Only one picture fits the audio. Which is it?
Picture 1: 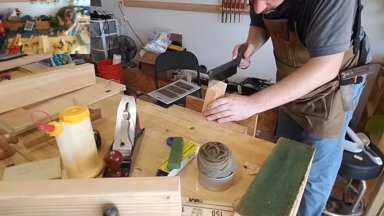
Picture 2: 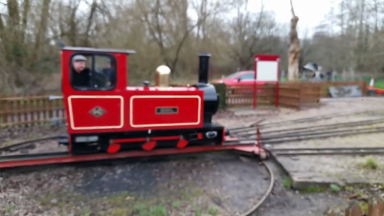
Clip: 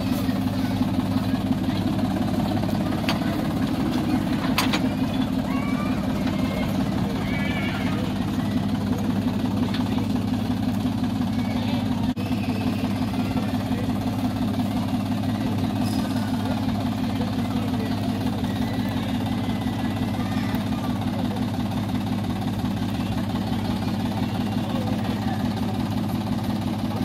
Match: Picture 2